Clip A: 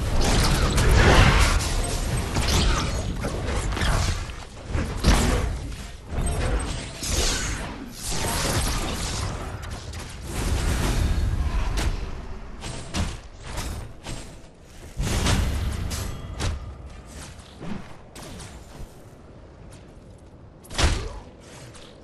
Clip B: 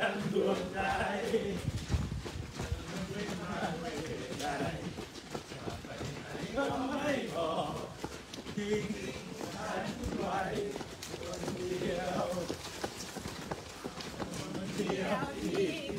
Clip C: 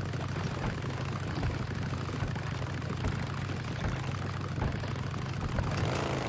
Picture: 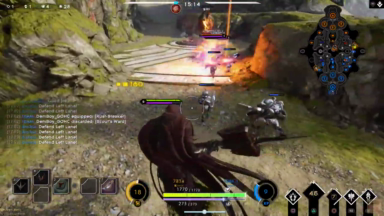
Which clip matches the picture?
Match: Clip A